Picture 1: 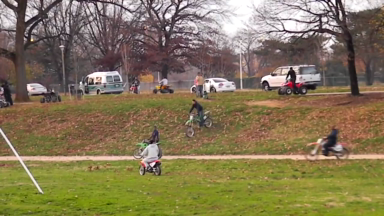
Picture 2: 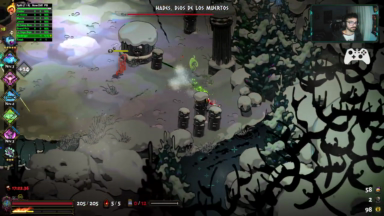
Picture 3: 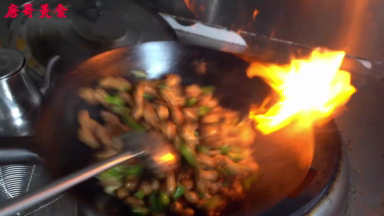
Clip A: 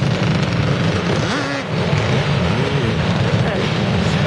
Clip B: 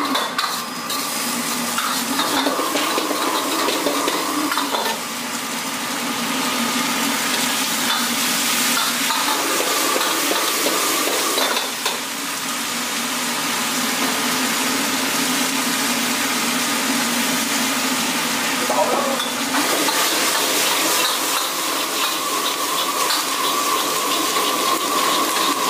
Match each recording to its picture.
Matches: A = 1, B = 3